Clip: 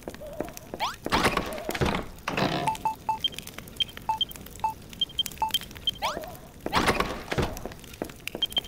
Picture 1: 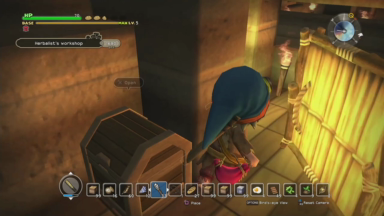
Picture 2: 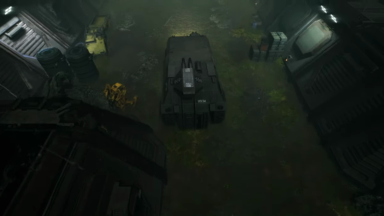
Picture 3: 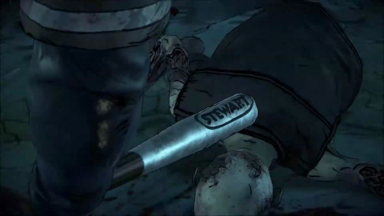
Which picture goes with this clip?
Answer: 1